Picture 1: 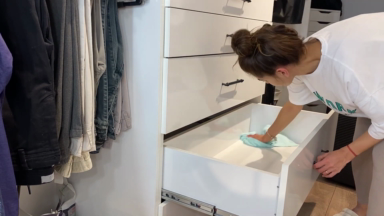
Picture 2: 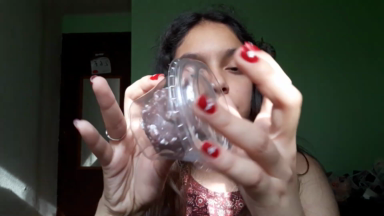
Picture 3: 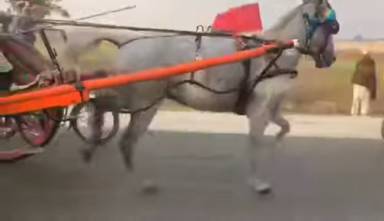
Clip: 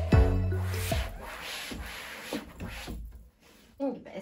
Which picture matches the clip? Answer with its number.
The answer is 1